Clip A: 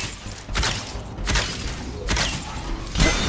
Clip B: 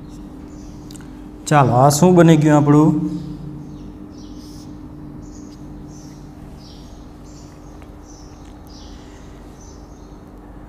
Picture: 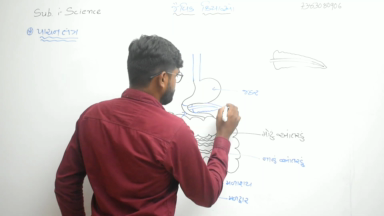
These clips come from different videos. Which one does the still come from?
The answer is B